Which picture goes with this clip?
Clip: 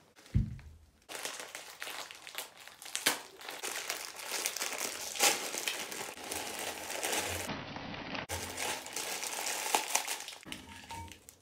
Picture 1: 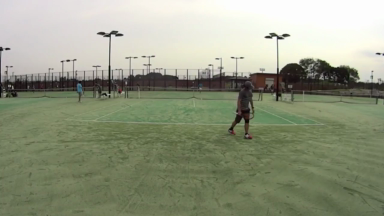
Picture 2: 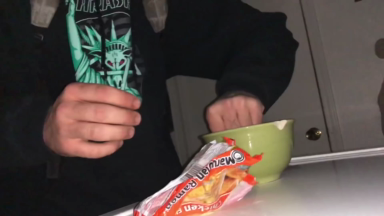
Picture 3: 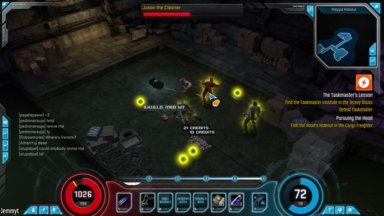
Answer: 2